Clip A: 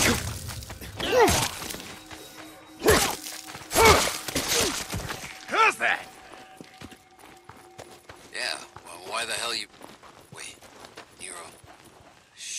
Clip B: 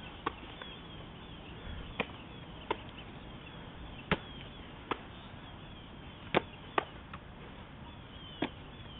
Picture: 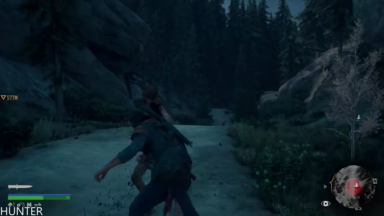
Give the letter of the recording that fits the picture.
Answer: A